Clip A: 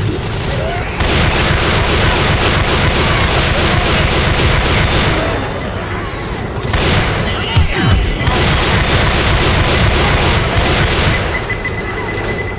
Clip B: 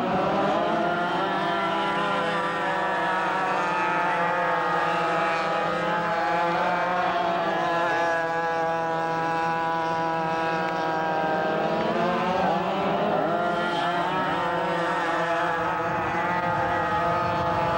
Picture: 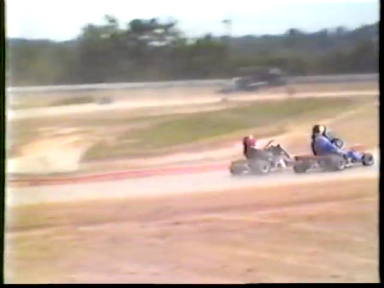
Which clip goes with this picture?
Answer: B